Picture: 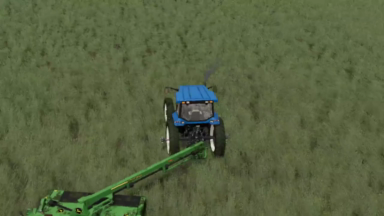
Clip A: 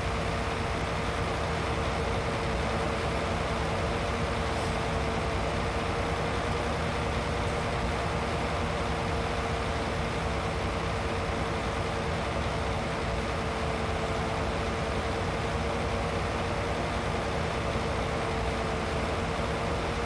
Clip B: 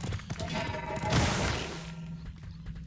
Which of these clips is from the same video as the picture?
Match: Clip A